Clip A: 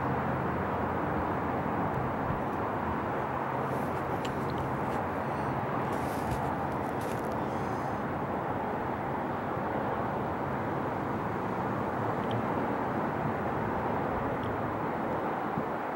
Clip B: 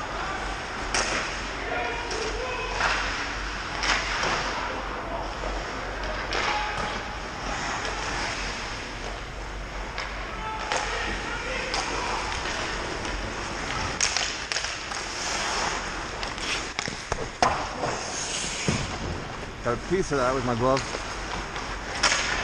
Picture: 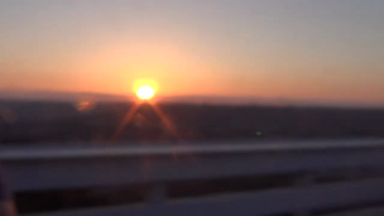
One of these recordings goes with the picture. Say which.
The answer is A